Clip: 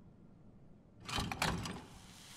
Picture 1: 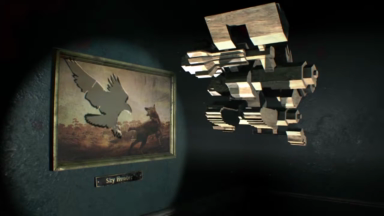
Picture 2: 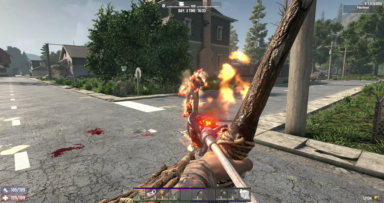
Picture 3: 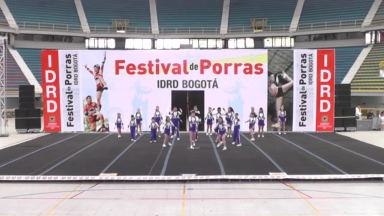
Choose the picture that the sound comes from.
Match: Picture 1